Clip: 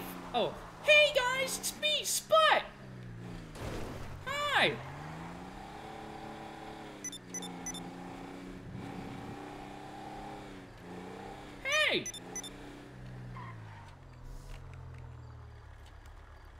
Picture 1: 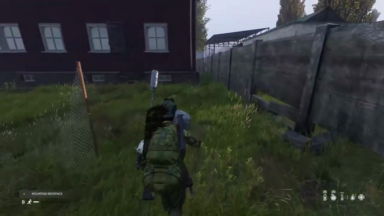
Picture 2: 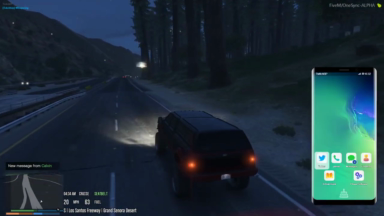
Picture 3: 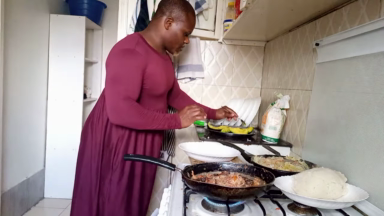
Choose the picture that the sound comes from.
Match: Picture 2